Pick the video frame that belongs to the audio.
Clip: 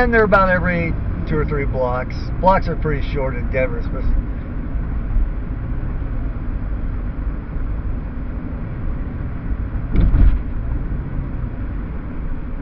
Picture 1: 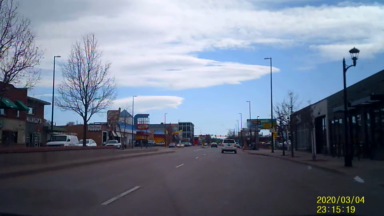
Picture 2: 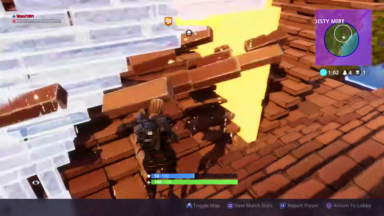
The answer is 1